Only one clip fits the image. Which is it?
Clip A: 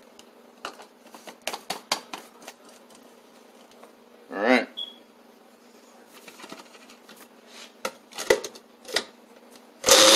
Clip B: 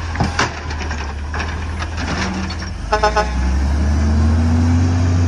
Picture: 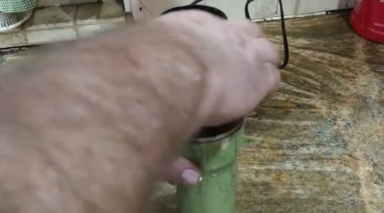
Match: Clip A